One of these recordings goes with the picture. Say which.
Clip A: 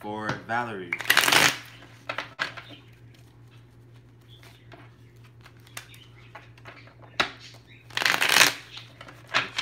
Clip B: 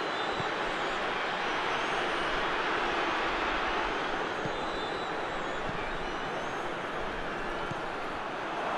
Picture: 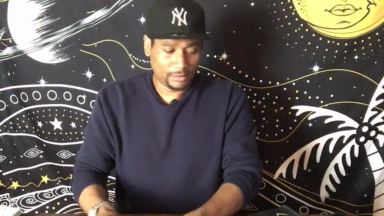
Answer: A